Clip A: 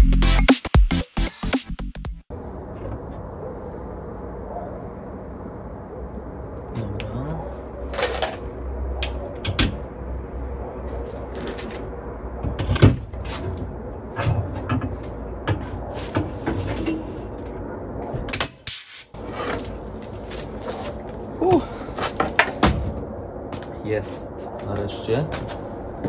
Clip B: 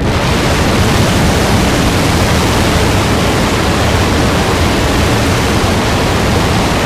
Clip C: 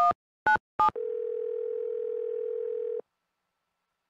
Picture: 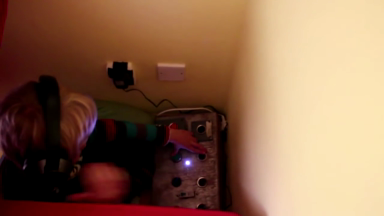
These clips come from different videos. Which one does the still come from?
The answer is B